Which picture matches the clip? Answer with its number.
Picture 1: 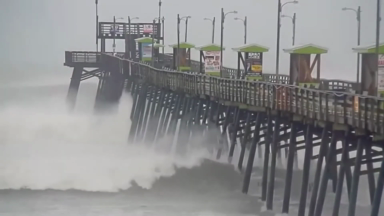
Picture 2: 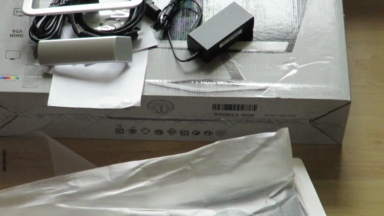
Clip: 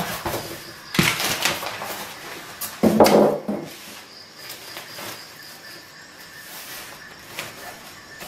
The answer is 2